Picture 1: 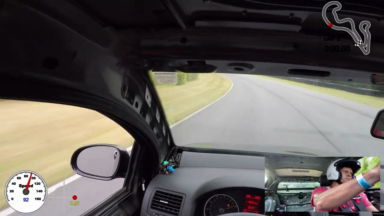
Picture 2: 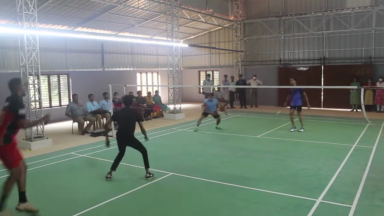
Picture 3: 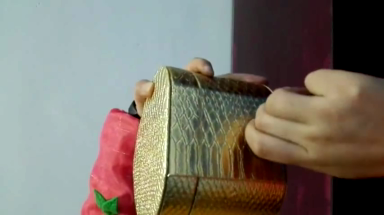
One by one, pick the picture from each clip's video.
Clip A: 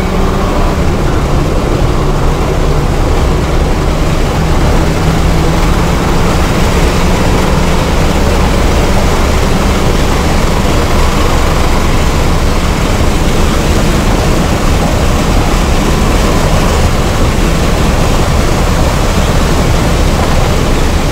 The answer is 1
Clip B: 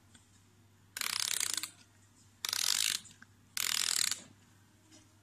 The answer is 3